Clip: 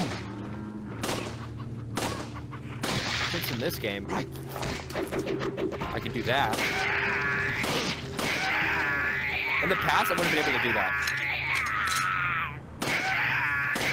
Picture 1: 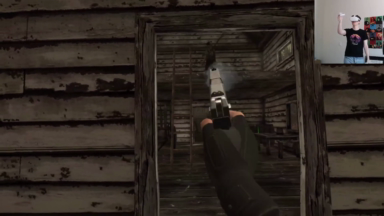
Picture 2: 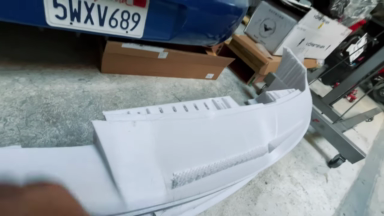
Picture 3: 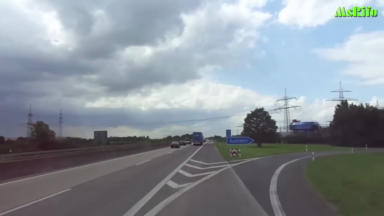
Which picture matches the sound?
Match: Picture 1